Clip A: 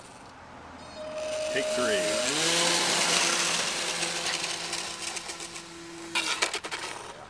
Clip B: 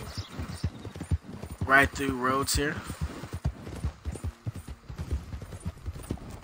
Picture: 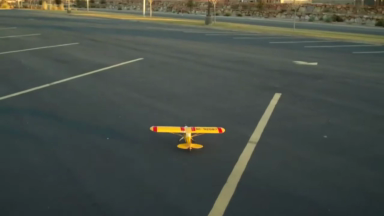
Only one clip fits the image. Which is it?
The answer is A